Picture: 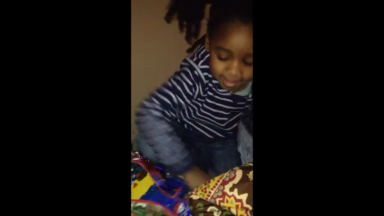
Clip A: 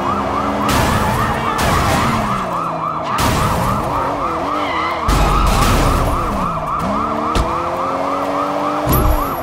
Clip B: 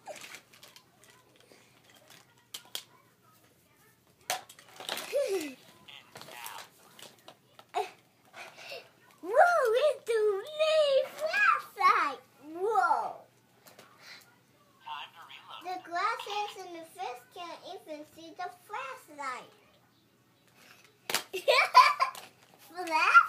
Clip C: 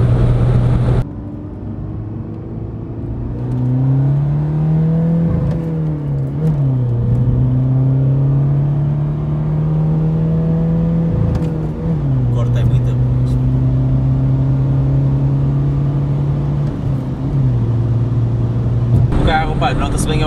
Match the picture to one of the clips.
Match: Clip B